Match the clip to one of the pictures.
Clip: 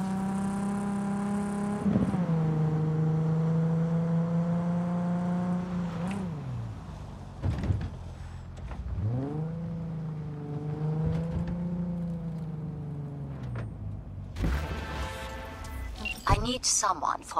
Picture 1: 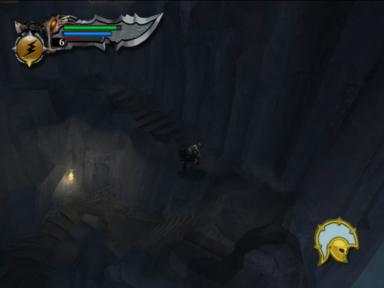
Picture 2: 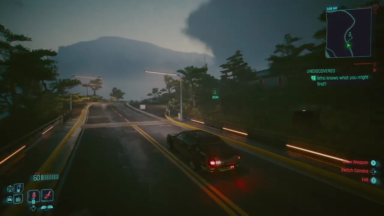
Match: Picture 2